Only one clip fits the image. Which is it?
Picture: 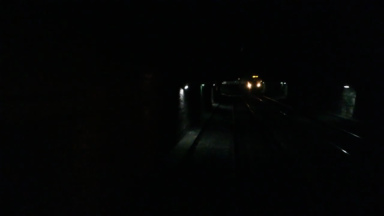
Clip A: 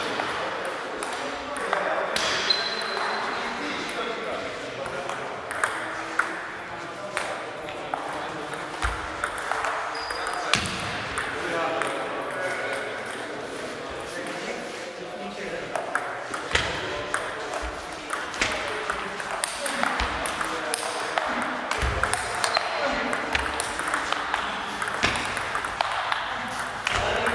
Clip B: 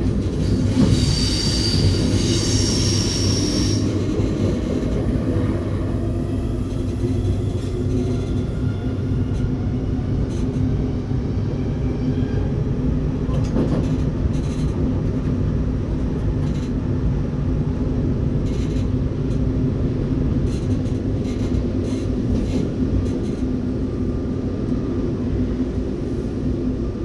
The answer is B